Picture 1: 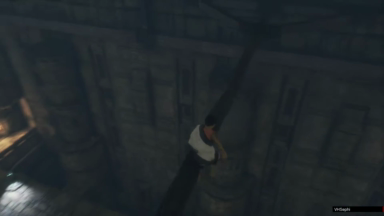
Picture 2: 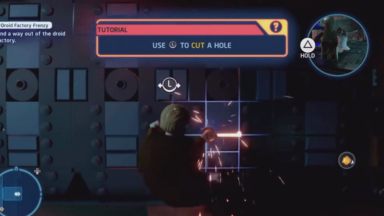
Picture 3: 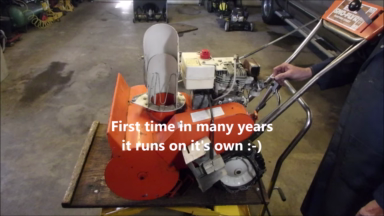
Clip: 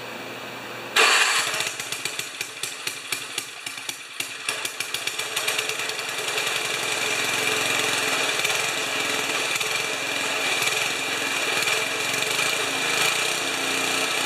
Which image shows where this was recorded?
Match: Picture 3